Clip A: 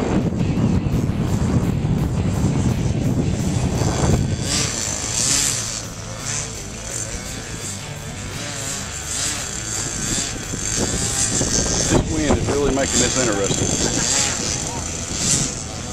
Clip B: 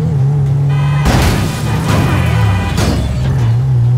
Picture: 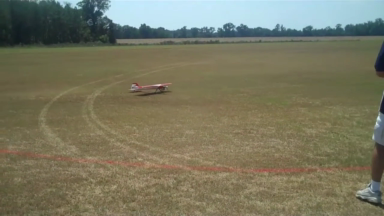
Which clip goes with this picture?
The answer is A